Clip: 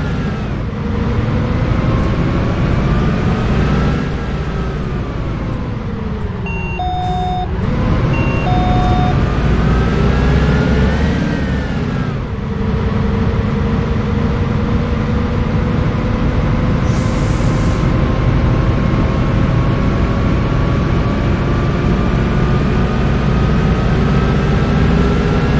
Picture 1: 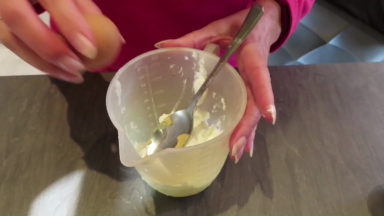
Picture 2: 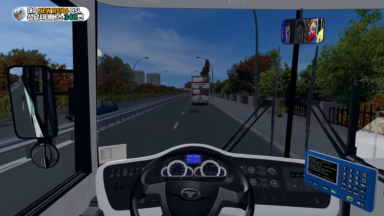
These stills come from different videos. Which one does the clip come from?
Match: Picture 2